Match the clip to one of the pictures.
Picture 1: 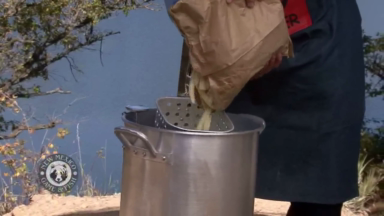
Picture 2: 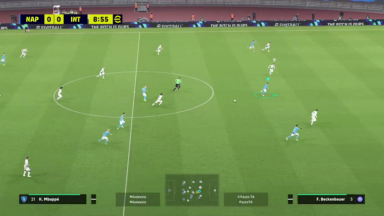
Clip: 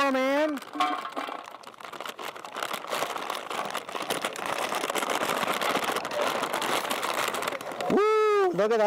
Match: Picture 1